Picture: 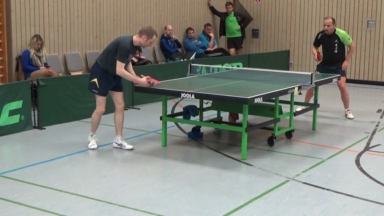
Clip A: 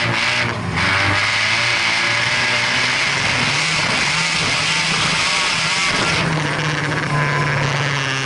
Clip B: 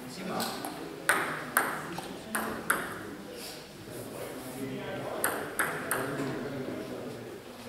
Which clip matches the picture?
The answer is B